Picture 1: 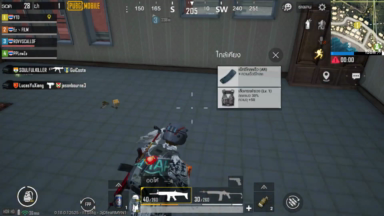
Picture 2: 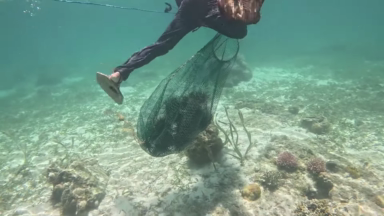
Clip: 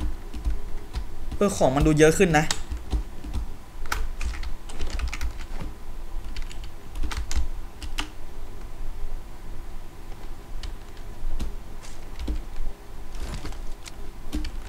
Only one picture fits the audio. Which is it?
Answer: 1